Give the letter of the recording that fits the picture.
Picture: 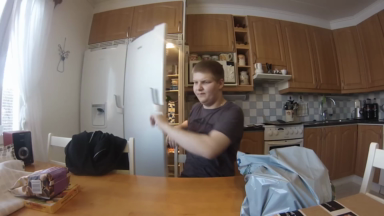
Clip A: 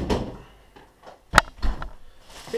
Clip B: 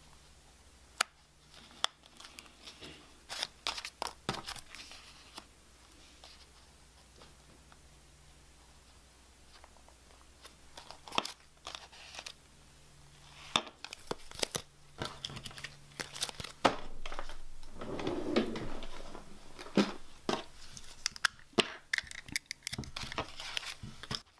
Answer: A